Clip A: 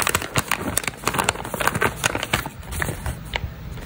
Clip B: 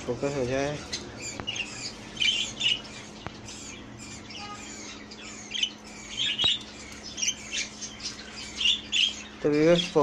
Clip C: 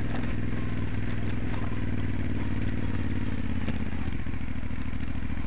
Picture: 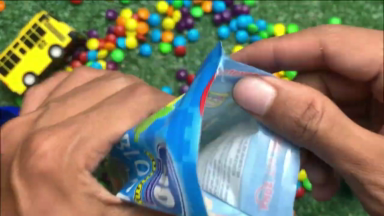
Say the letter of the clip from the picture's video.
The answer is A